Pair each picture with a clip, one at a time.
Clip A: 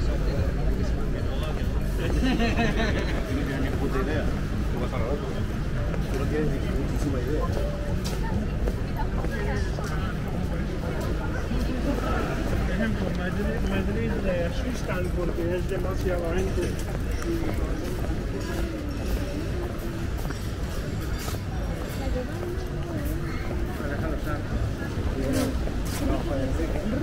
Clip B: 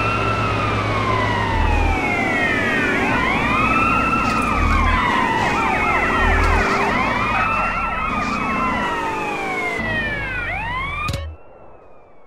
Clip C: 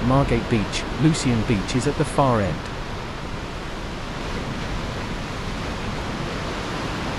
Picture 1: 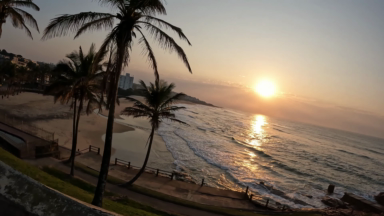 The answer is C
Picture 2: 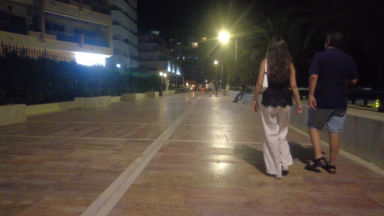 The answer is A